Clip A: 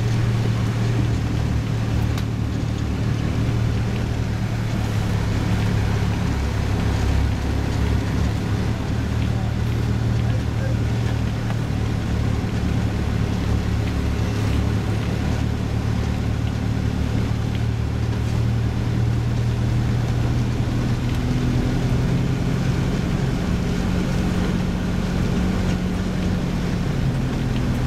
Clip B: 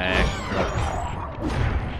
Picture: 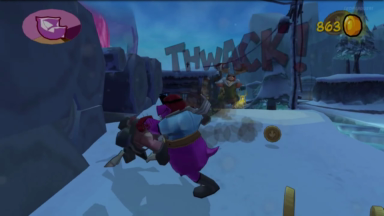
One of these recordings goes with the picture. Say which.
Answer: B